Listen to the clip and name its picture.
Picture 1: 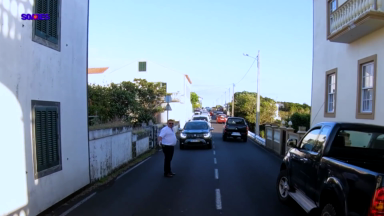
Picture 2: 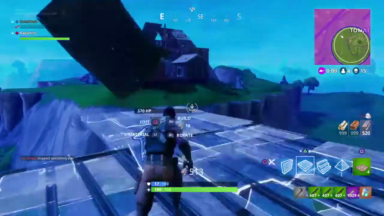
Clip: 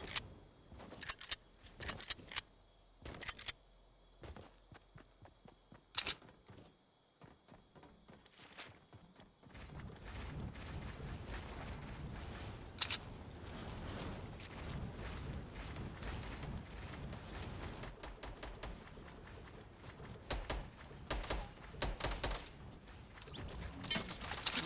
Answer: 2